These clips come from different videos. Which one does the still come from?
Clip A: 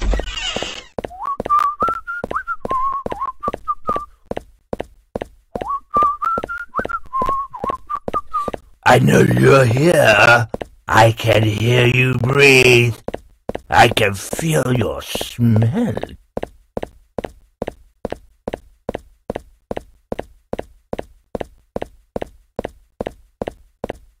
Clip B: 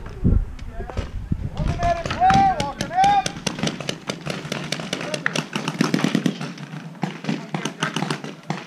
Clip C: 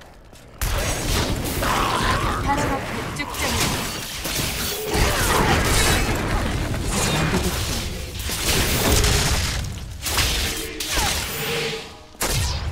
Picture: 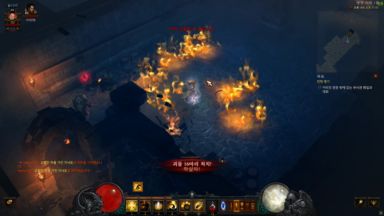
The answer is C